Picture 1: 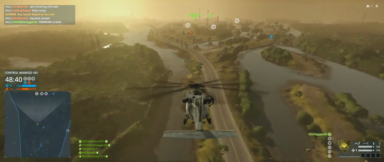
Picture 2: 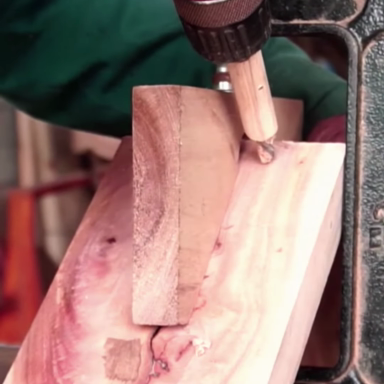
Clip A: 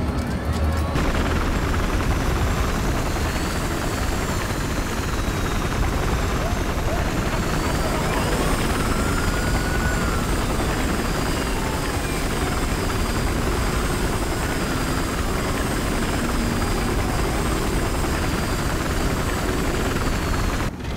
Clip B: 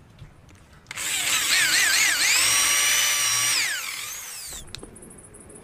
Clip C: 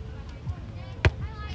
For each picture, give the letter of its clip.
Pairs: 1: A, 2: B